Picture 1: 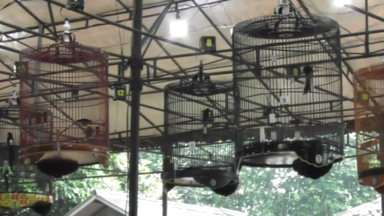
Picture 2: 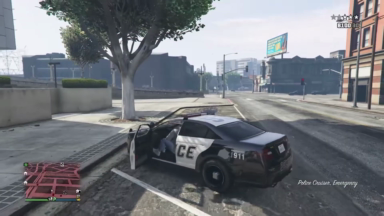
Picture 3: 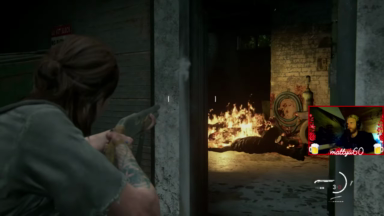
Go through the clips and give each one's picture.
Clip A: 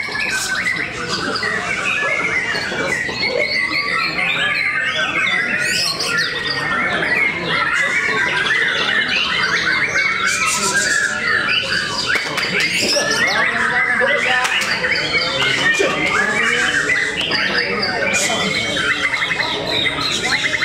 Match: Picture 1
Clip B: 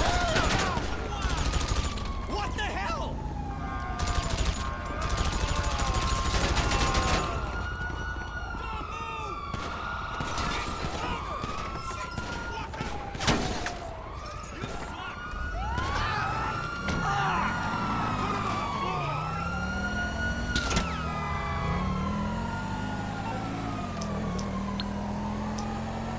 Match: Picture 2